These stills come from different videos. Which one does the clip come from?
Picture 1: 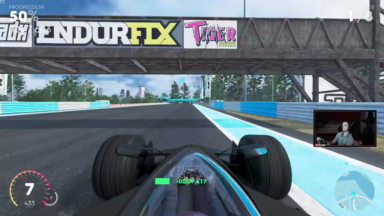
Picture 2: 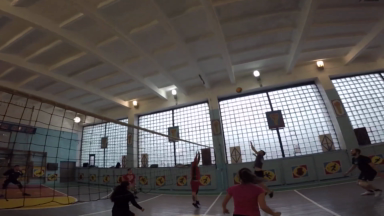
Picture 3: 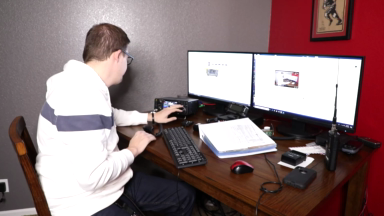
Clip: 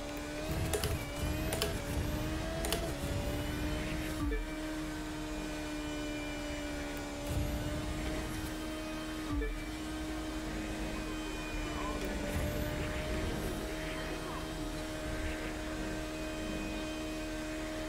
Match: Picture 1